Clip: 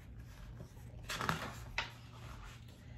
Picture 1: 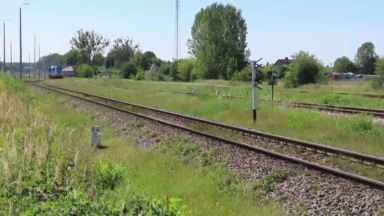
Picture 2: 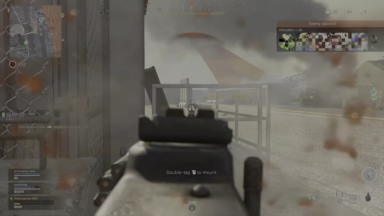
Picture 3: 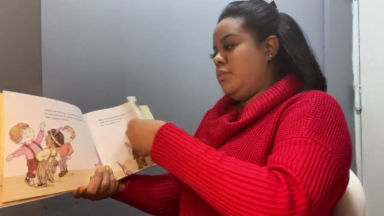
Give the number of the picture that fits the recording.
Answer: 3